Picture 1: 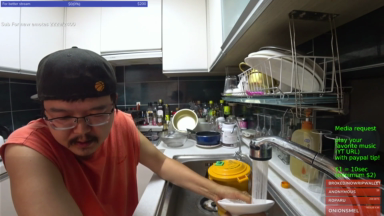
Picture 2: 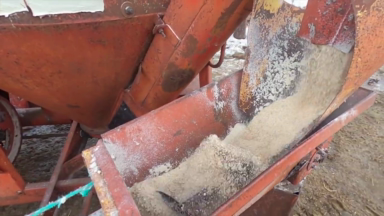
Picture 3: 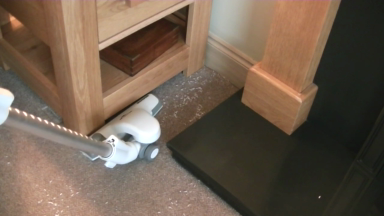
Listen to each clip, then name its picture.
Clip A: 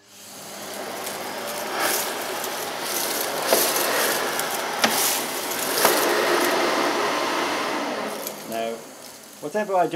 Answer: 3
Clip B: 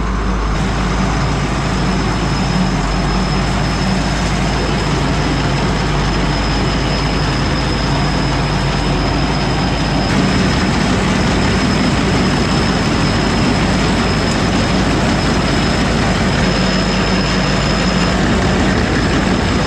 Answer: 2